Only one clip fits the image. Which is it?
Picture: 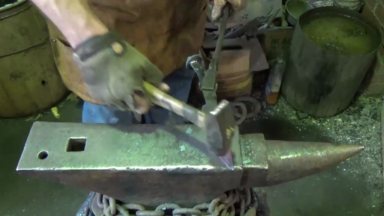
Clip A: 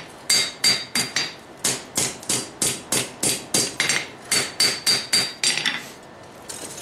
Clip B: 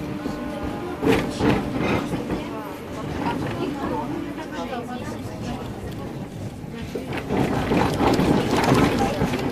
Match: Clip A